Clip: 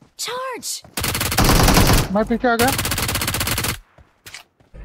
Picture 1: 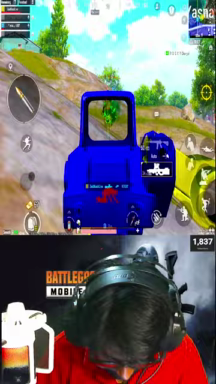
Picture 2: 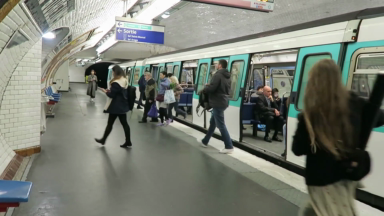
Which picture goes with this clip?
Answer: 1